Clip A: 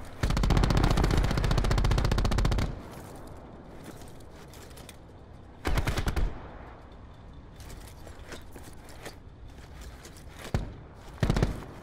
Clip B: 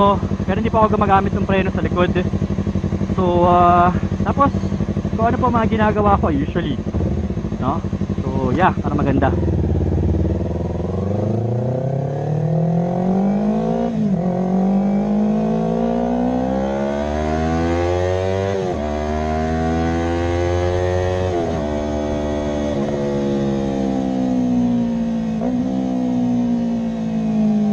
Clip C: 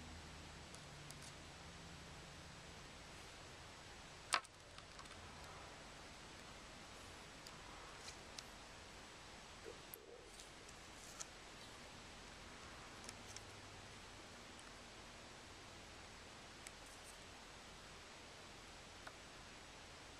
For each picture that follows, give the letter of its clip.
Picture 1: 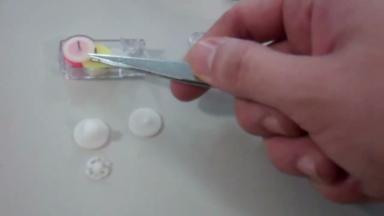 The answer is C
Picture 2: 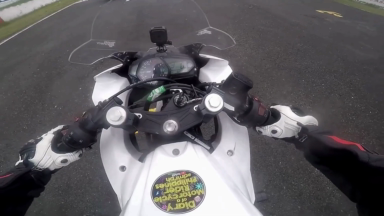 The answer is B